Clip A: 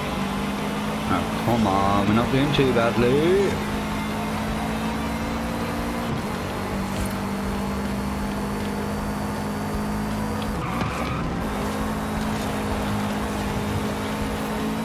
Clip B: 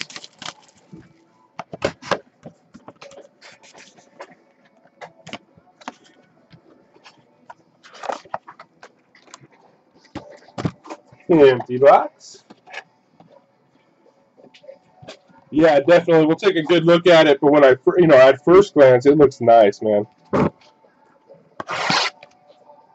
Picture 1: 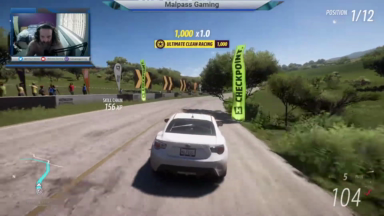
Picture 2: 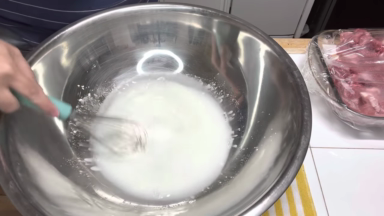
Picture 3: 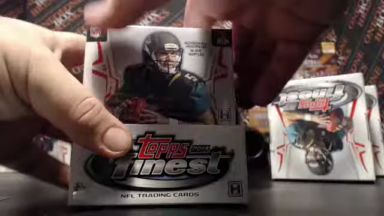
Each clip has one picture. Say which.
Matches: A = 1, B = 3